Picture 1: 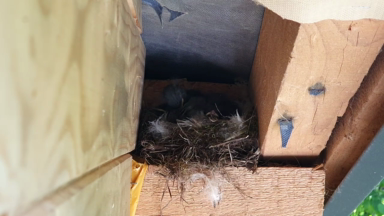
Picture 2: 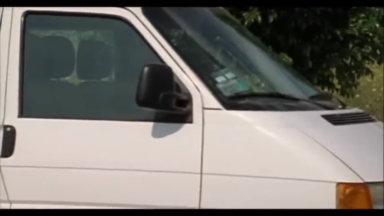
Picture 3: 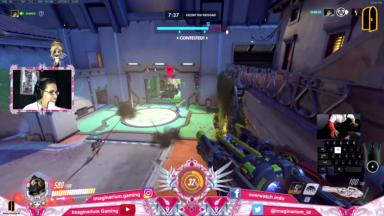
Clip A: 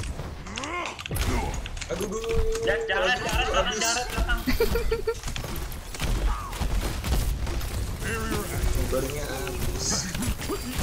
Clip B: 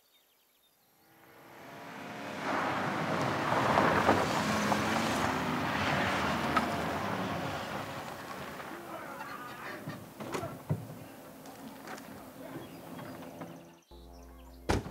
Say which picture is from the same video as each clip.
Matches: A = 3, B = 2